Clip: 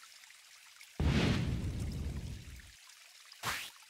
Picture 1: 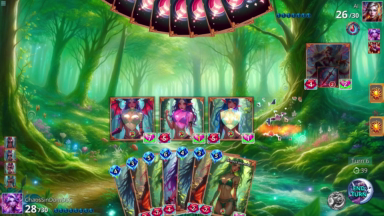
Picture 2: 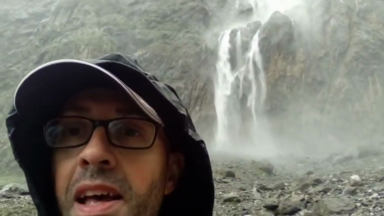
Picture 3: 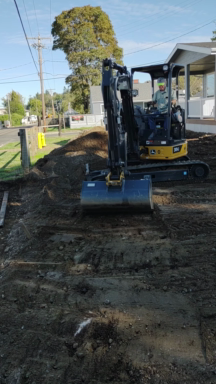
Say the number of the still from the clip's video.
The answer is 1